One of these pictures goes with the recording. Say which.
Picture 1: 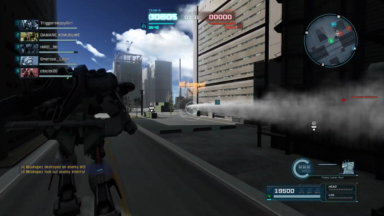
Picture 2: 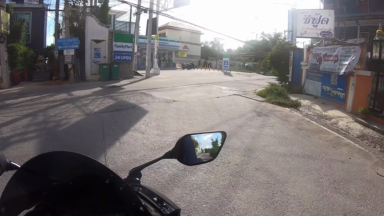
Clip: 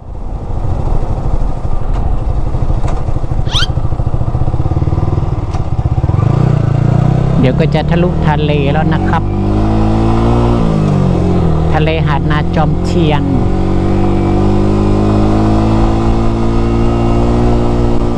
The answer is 2